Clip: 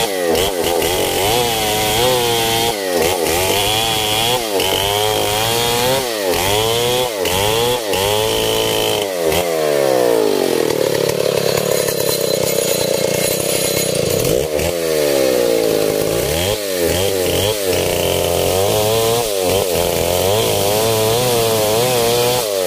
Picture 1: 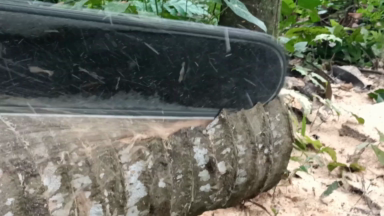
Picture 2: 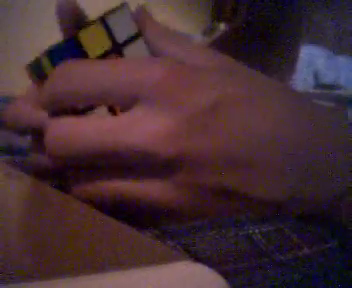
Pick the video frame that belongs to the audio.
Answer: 1